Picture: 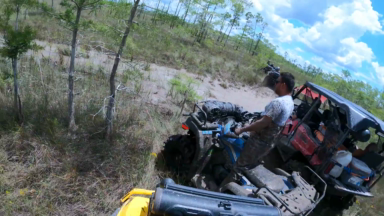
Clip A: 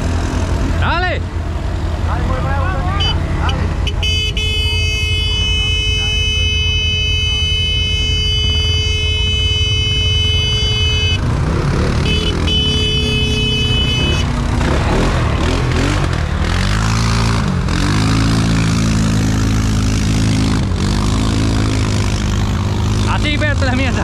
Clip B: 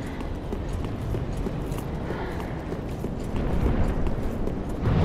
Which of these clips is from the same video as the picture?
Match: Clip A